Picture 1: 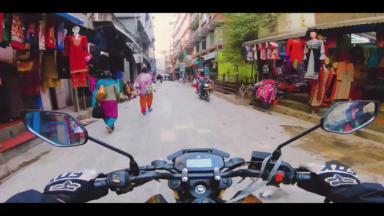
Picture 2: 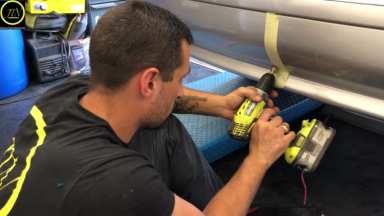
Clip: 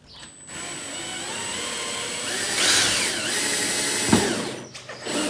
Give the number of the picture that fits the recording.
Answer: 2